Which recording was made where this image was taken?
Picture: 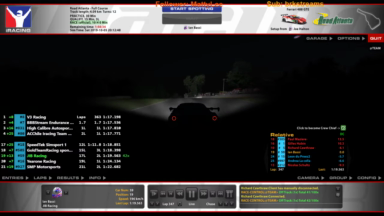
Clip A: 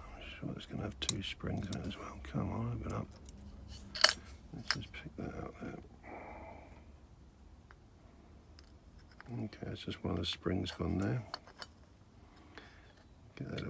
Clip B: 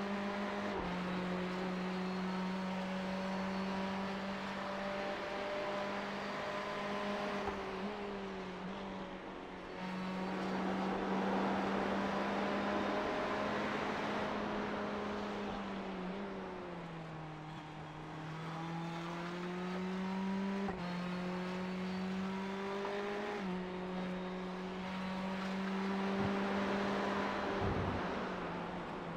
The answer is B